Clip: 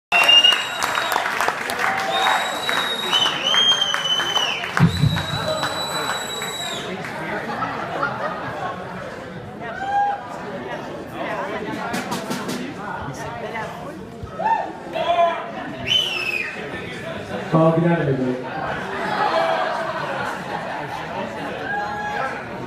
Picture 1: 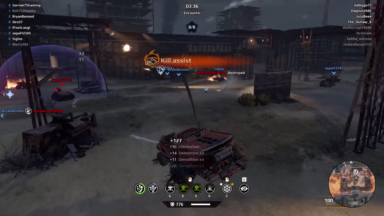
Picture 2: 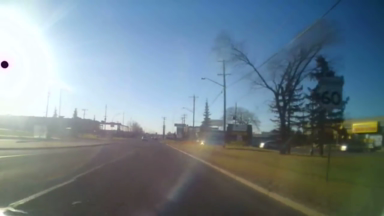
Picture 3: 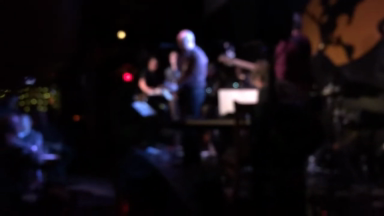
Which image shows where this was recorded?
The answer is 3